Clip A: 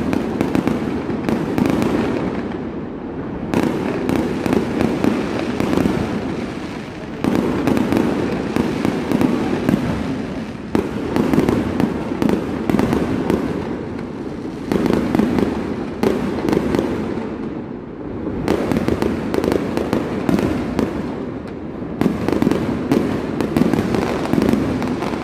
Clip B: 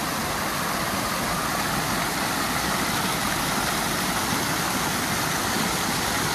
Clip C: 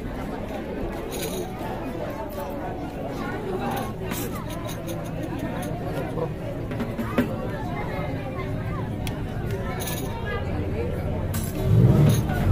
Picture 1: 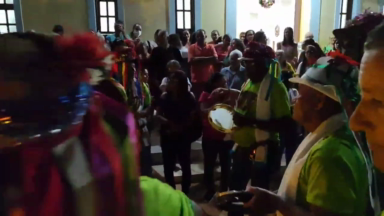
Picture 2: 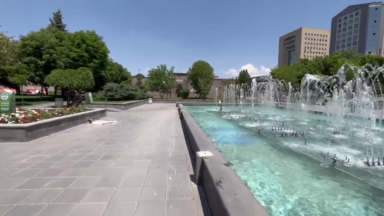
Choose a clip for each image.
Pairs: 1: C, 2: B